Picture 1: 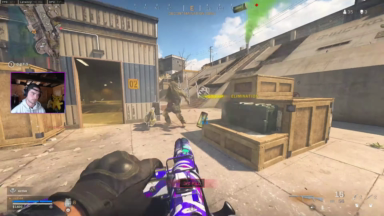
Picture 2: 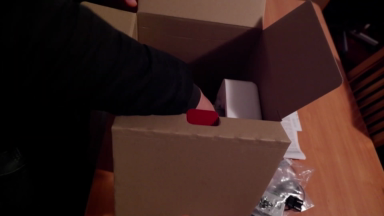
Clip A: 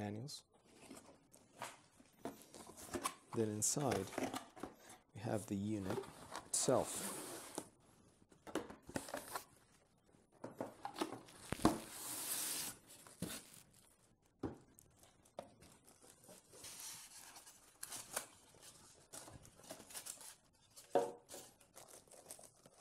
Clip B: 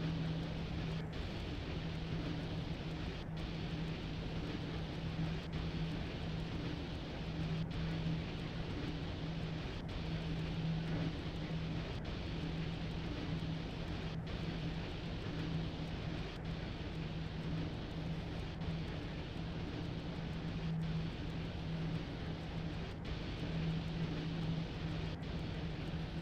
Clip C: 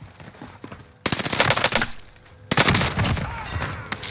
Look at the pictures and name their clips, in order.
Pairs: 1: C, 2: A